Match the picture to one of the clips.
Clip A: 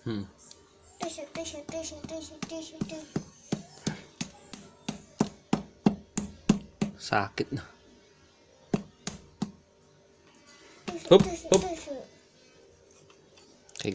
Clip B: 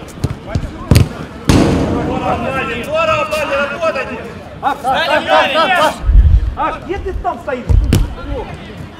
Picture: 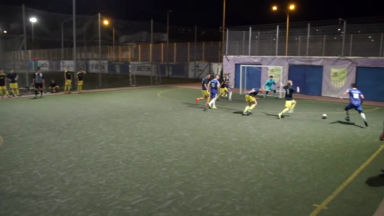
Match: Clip B